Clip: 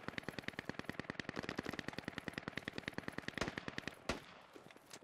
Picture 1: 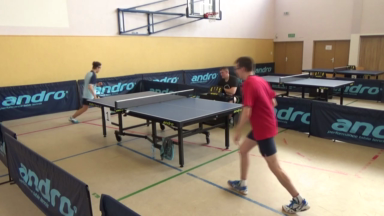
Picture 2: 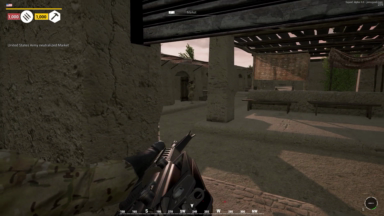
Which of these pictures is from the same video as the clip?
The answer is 2